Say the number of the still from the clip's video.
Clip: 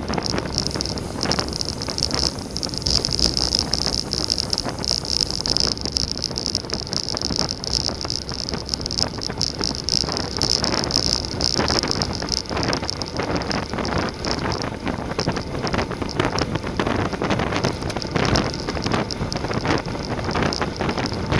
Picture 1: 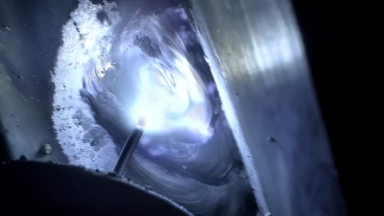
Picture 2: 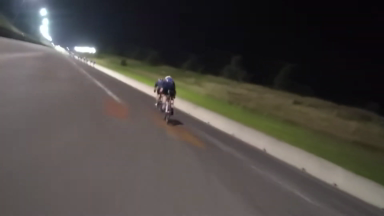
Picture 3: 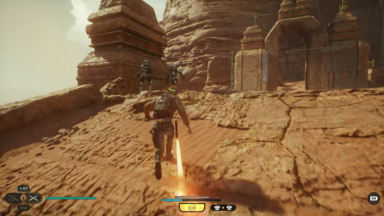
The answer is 2